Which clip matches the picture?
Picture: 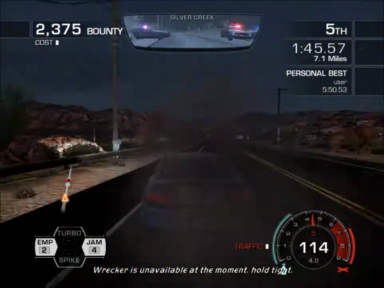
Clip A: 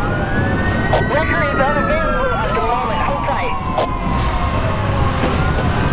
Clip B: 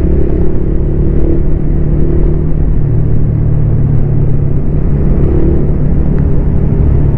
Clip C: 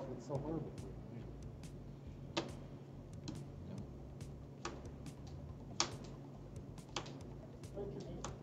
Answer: A